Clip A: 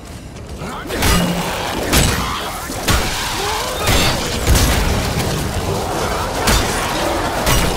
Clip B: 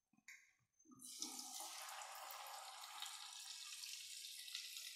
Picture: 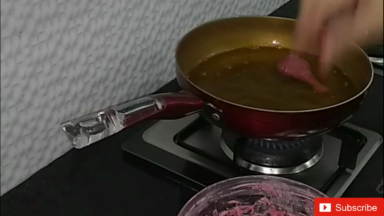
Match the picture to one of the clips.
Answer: B